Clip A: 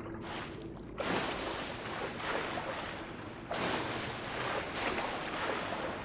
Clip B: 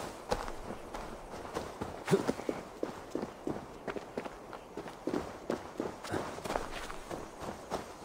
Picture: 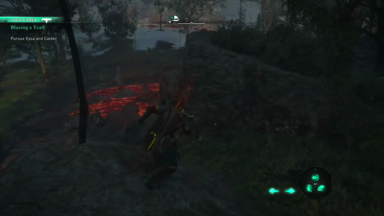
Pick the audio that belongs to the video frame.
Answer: B